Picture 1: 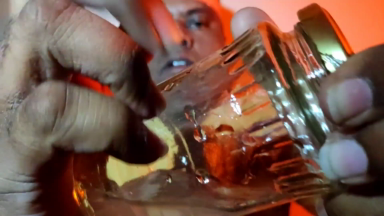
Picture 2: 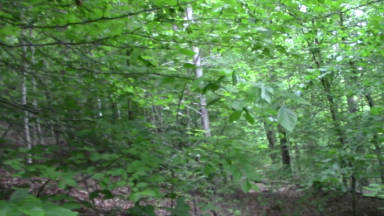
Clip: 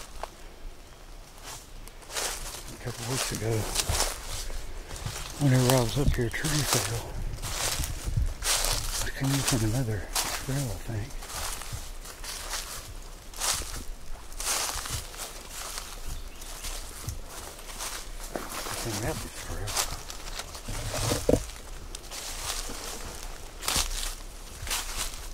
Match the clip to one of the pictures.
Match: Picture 2